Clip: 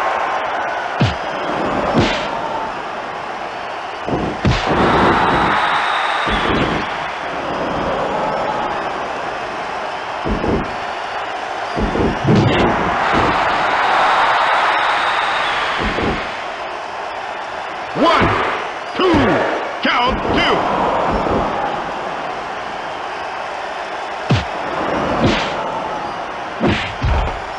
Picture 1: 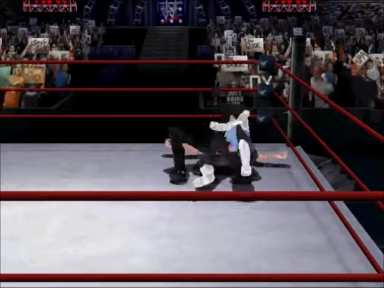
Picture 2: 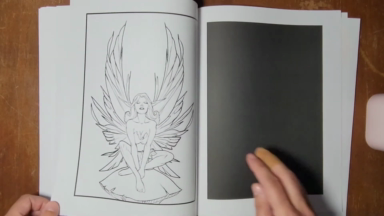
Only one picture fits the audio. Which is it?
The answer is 1